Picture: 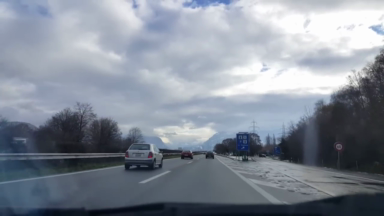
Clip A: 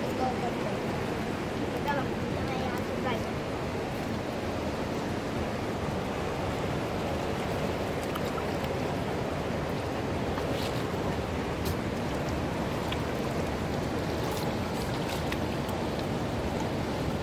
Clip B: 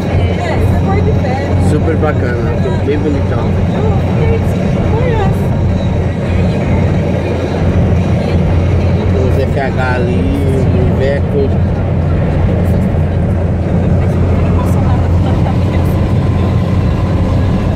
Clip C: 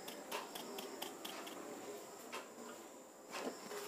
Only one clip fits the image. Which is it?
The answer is B